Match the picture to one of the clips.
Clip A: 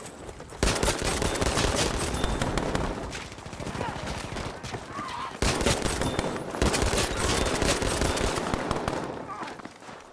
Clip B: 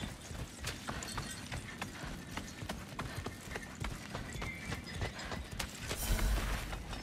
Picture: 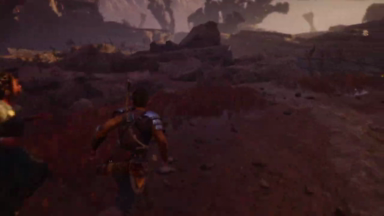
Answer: B